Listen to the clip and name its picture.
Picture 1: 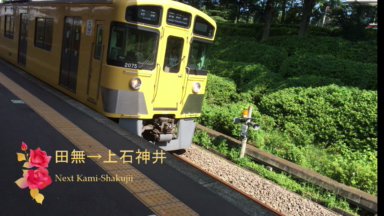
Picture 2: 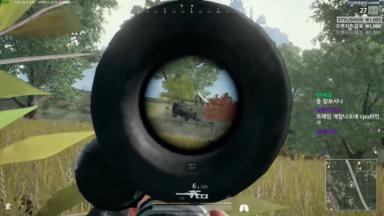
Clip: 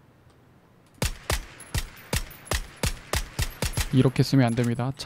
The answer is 2